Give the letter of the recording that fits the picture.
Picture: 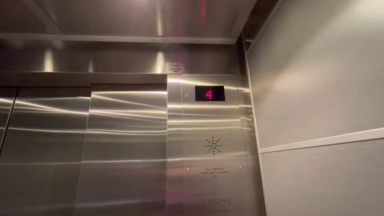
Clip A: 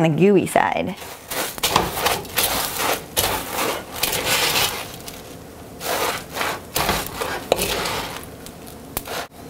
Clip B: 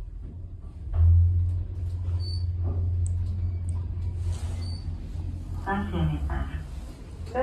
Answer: B